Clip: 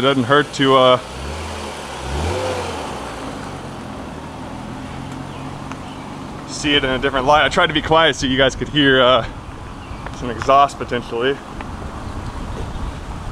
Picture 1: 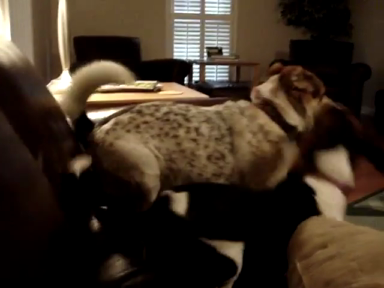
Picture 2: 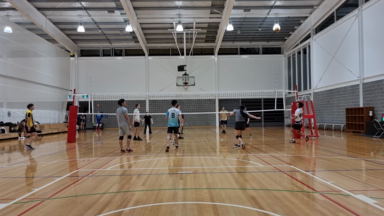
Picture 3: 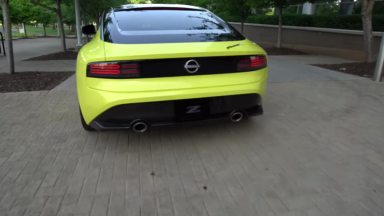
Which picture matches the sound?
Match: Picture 3